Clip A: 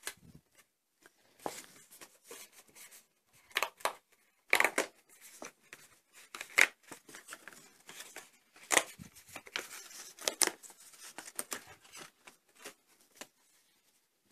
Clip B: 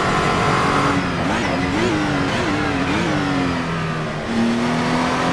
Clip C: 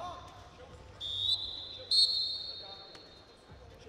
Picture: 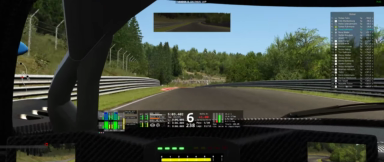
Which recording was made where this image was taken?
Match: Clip B